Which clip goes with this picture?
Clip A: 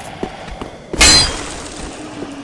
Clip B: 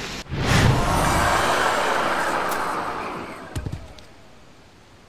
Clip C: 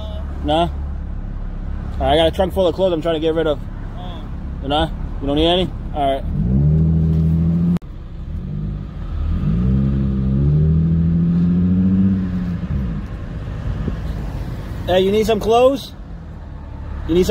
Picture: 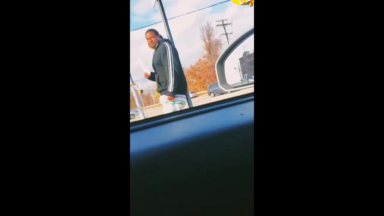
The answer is C